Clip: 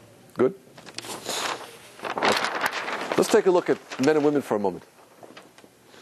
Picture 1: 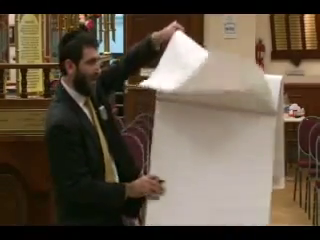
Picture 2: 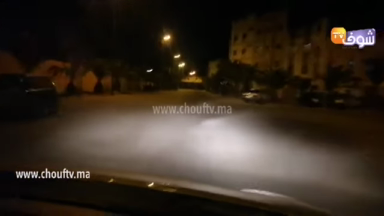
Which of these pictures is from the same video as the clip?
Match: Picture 1